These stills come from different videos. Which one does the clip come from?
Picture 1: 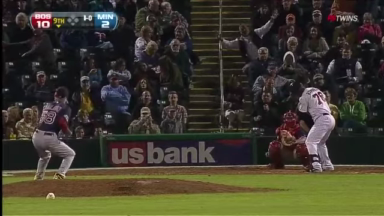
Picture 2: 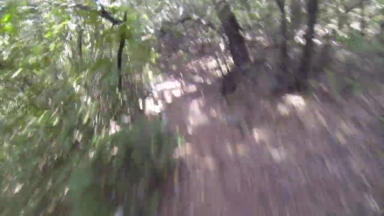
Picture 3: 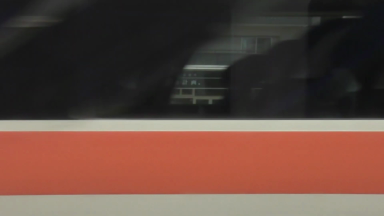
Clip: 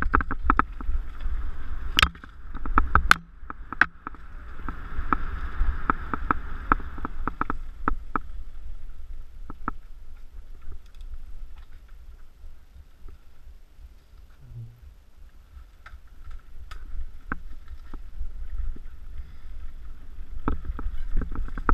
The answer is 2